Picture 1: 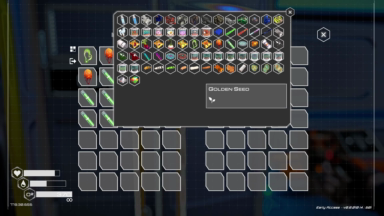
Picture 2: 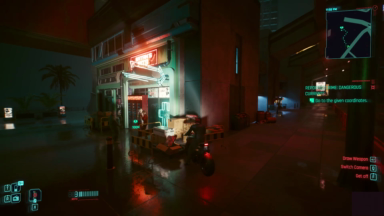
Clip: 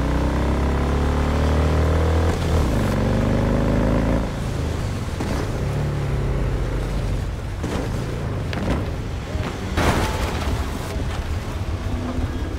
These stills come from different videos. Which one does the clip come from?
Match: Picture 2